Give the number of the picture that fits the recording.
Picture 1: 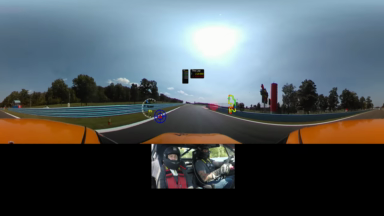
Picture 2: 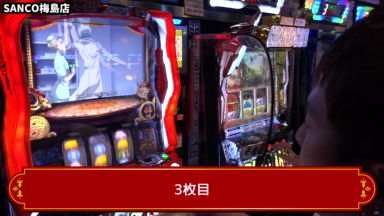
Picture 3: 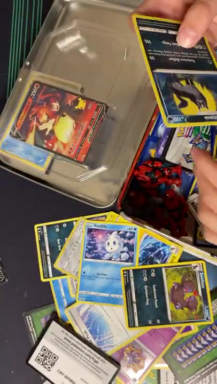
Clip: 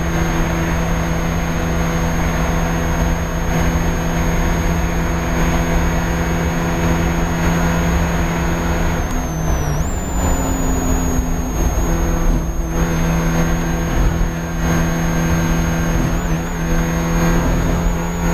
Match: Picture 1